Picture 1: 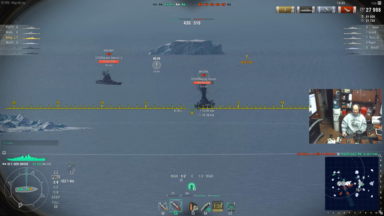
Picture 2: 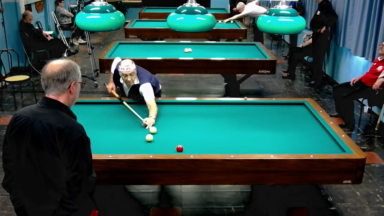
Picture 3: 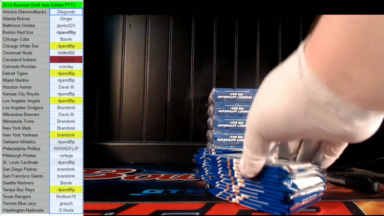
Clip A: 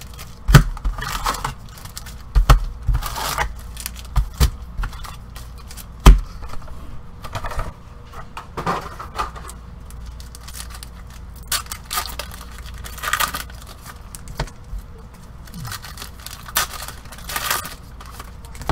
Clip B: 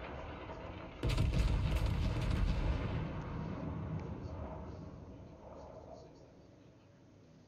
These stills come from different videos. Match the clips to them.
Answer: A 3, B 1